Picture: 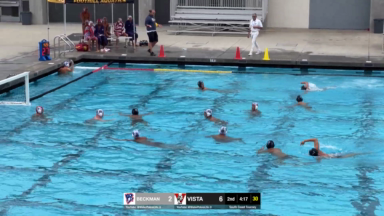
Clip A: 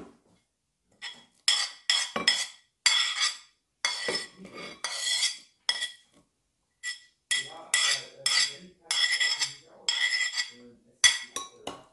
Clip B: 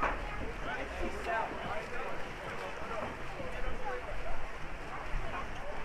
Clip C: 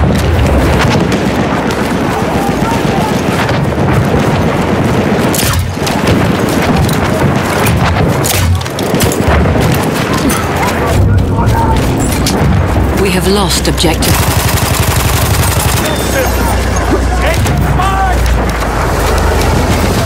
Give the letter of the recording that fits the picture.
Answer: B